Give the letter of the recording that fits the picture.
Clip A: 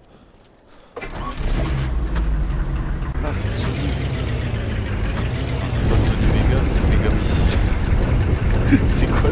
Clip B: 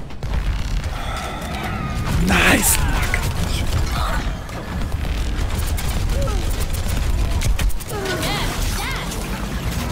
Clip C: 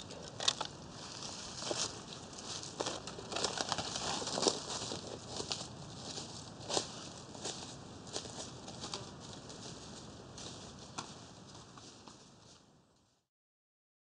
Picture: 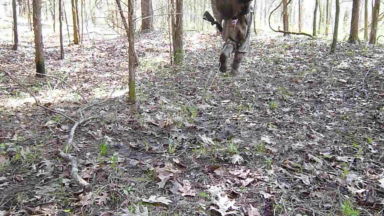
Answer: C